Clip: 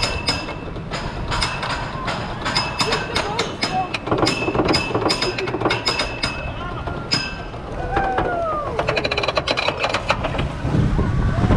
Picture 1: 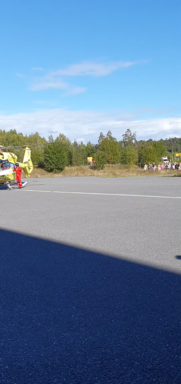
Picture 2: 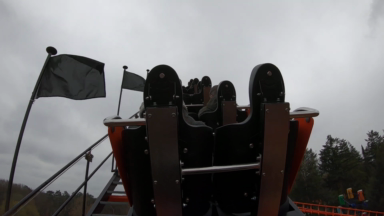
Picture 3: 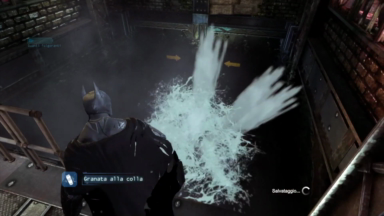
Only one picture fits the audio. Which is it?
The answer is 2